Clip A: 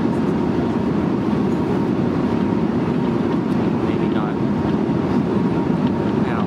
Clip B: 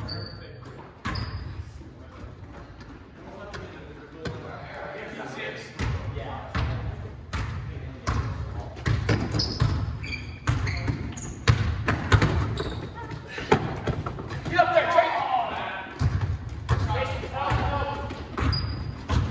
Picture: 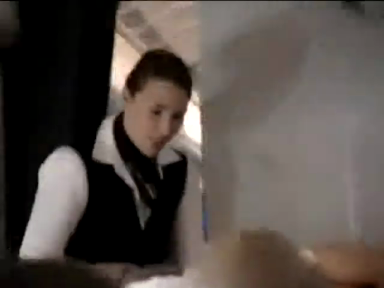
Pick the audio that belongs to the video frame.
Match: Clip A